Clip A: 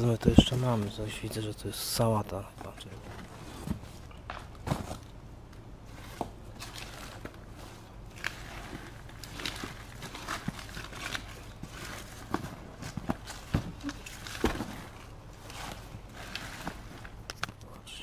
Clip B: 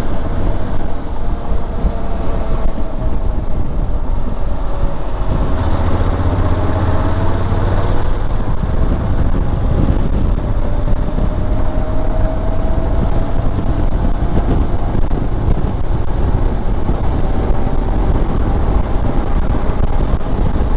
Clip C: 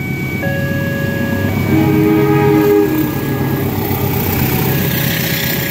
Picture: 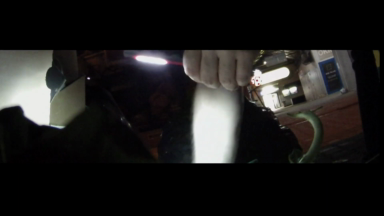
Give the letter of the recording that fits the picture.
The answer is A